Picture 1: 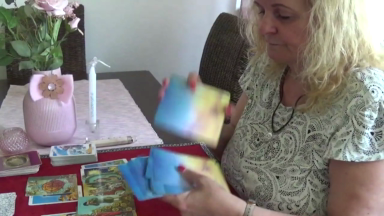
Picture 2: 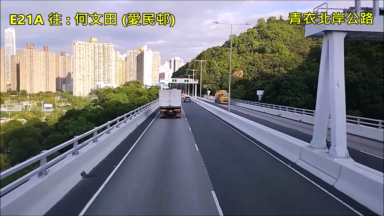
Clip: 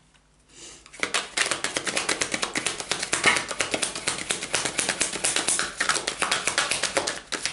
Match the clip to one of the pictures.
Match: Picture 1